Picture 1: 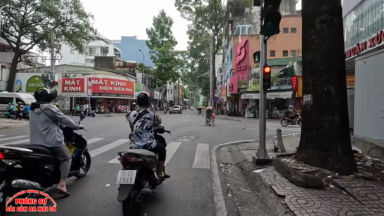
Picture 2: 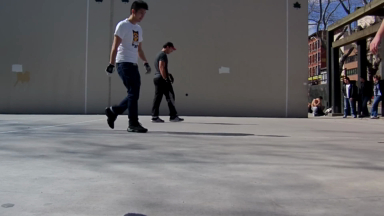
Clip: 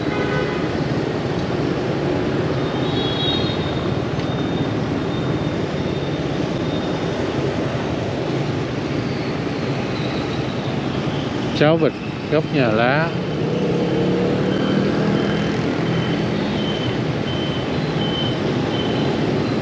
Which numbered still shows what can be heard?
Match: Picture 1